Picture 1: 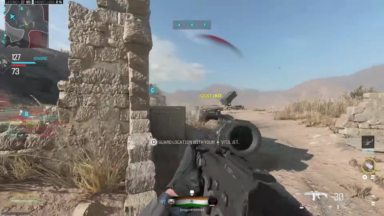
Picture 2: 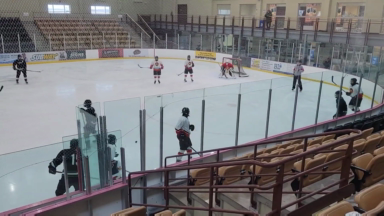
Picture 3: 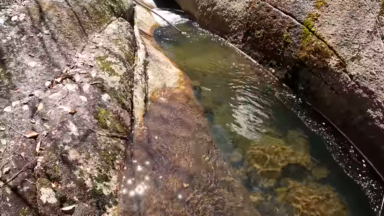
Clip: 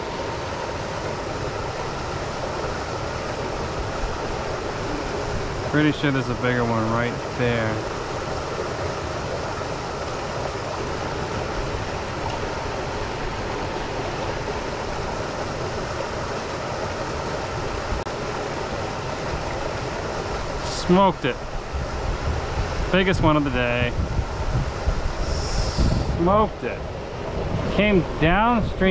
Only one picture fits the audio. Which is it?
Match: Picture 3